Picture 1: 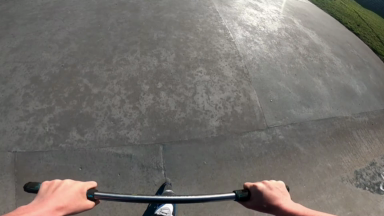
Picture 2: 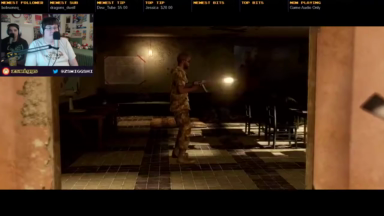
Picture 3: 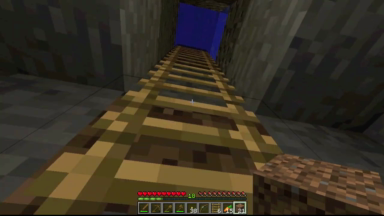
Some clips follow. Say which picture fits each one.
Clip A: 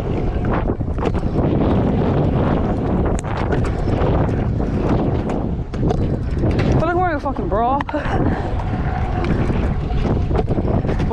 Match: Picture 1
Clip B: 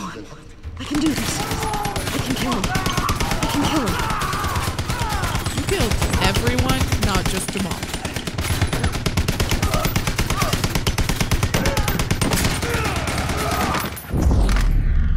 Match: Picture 2